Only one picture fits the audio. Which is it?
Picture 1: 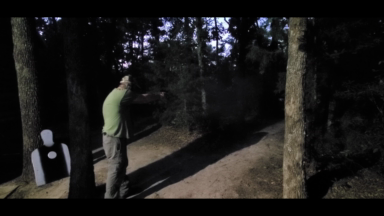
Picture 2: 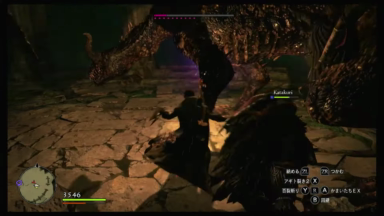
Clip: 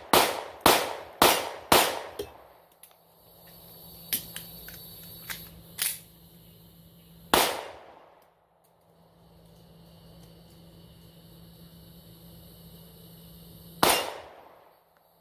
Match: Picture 1